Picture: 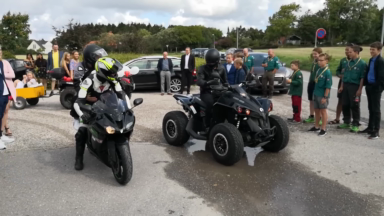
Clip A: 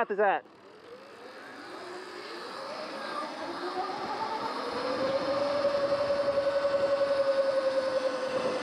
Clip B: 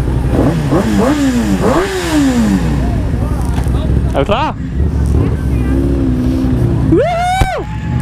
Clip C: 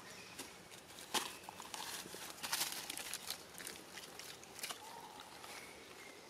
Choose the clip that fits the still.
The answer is B